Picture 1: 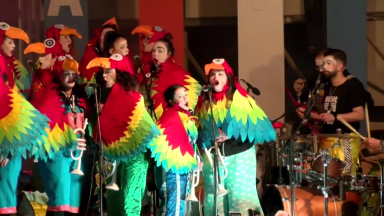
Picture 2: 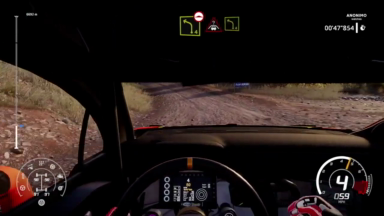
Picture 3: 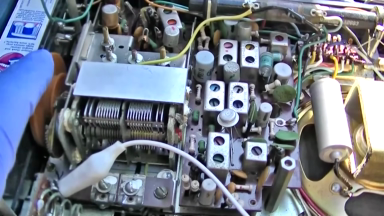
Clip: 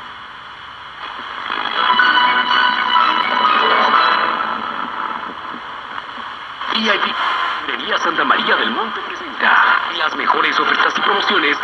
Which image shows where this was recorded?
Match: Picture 3